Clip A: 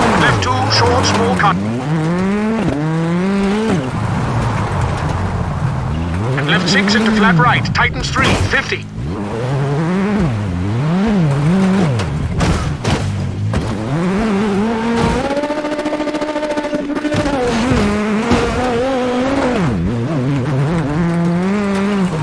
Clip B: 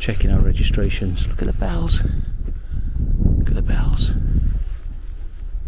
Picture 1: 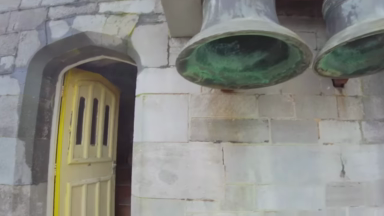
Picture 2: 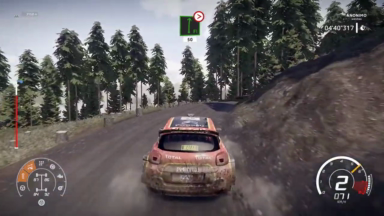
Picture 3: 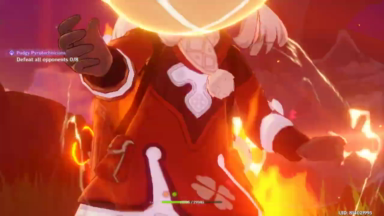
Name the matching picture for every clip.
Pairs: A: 2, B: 1